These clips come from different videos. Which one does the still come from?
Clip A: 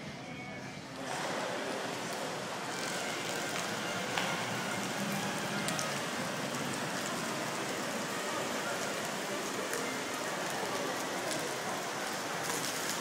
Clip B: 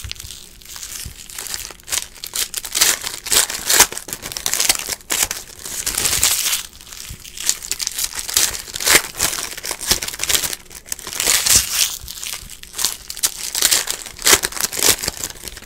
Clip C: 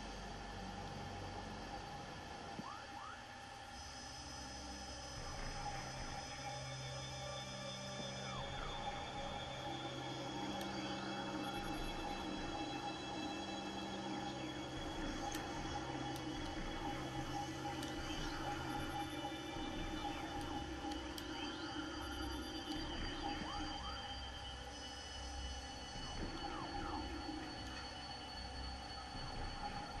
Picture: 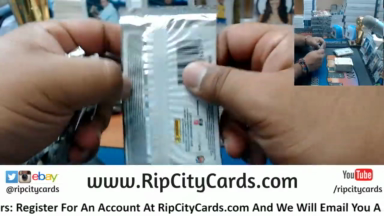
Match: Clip B